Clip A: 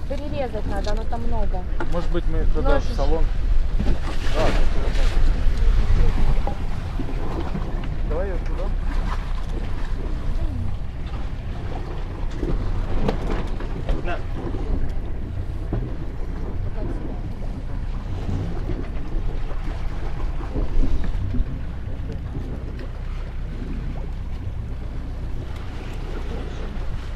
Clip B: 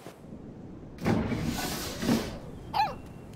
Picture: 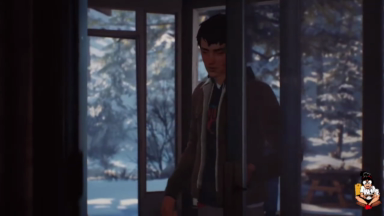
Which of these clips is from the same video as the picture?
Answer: B